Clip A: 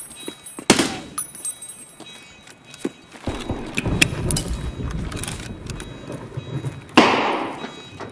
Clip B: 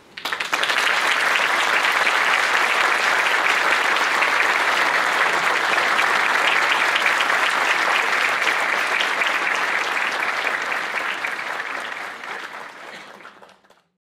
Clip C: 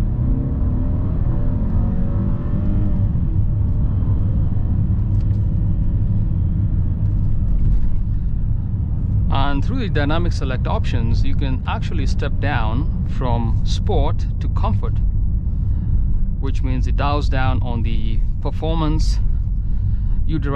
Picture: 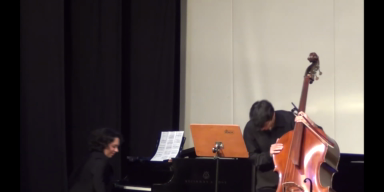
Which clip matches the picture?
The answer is B